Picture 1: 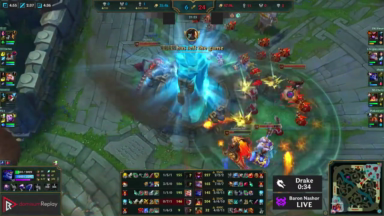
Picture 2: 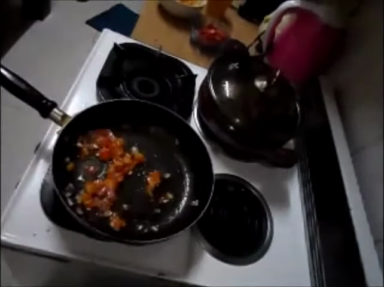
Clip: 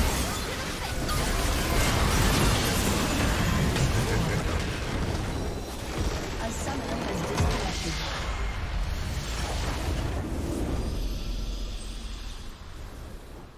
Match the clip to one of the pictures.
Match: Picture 1